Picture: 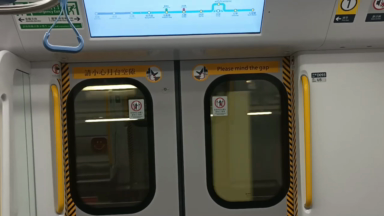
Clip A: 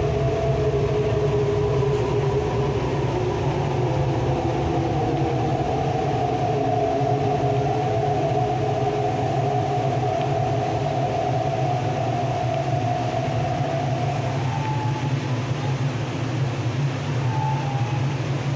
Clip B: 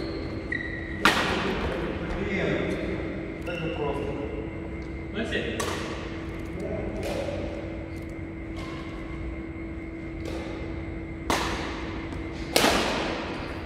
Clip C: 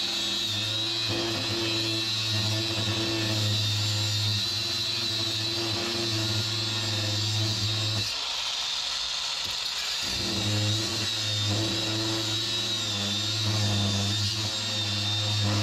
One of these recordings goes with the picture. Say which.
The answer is A